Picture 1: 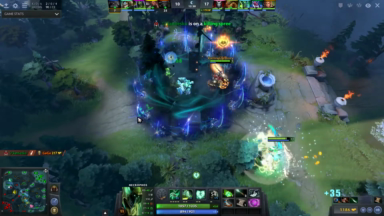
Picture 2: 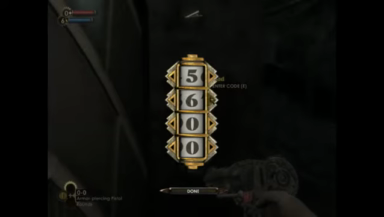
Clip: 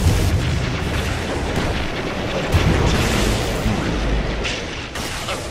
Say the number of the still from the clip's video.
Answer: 1